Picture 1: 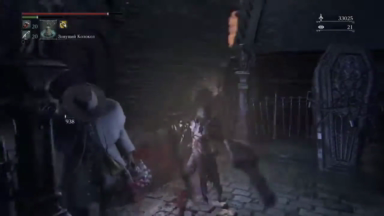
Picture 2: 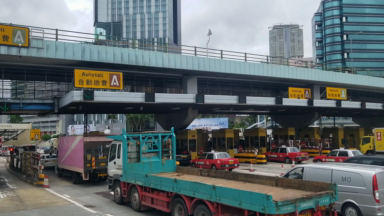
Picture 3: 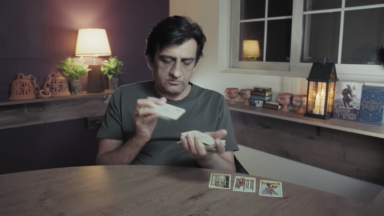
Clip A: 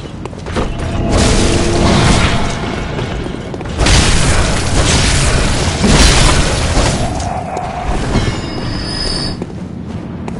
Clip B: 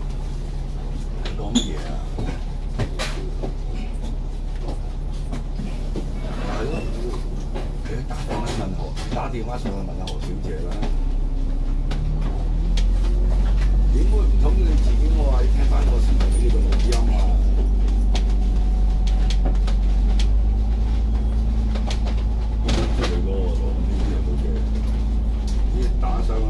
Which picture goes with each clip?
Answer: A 1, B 2